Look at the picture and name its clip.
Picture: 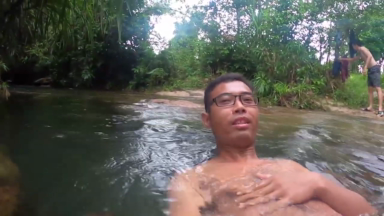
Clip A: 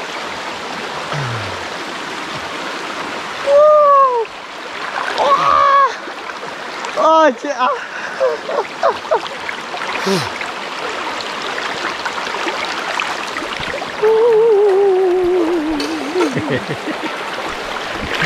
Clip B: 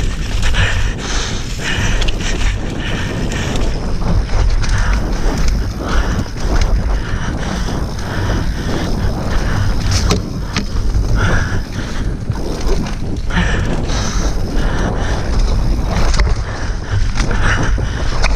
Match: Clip A